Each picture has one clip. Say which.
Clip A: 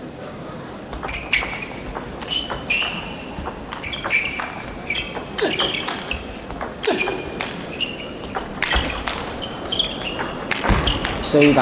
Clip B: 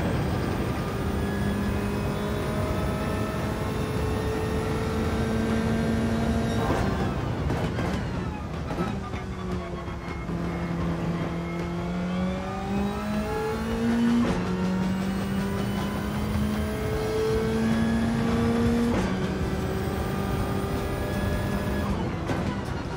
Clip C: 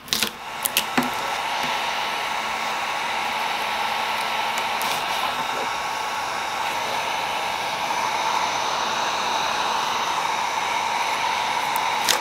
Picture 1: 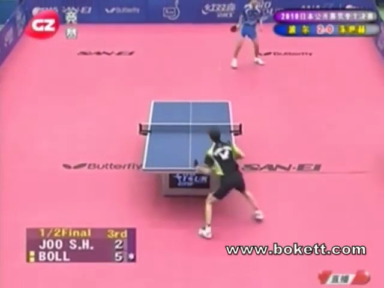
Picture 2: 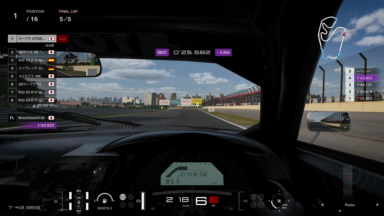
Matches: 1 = A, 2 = B